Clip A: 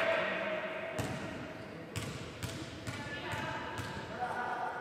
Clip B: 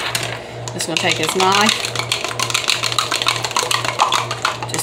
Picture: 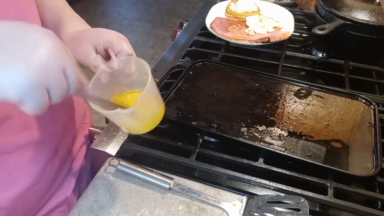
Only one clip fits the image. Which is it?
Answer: B